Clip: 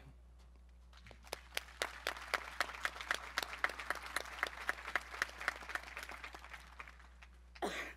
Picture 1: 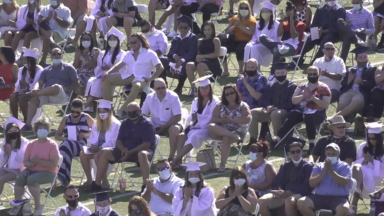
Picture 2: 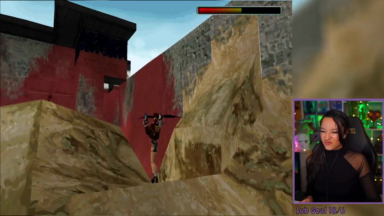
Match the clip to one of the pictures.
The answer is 1